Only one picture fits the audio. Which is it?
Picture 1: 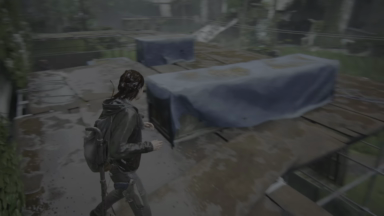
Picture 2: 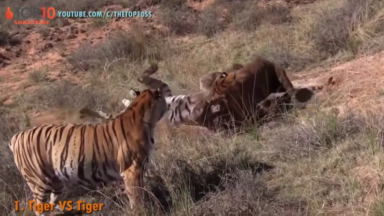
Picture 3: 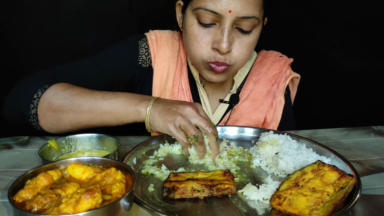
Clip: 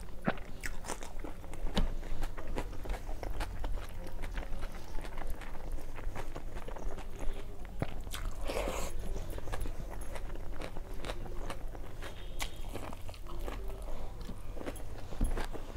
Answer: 3